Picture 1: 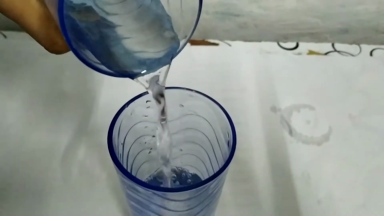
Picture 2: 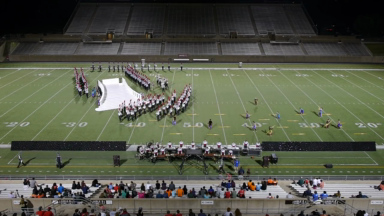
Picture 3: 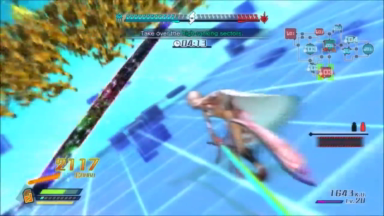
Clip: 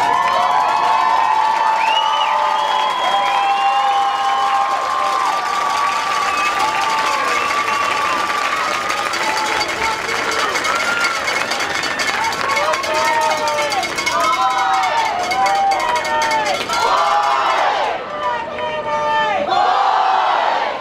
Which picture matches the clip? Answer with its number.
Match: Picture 2